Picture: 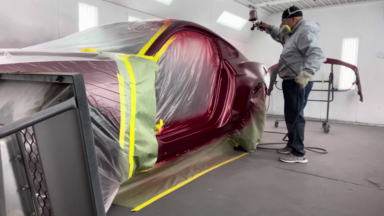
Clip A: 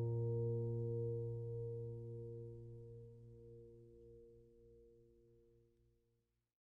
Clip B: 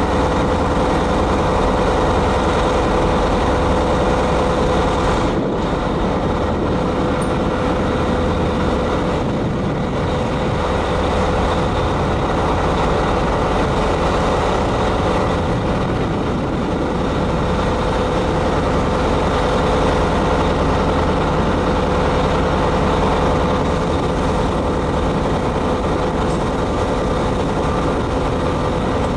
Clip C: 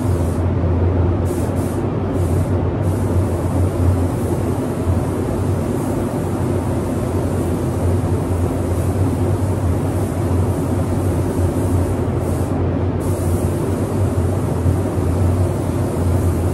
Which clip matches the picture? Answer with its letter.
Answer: C